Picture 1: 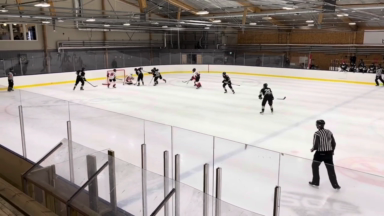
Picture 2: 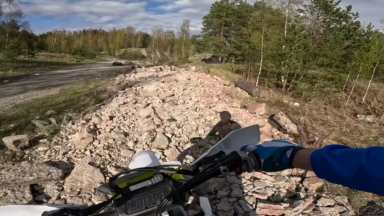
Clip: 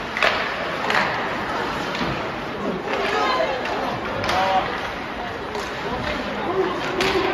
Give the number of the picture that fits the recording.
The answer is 1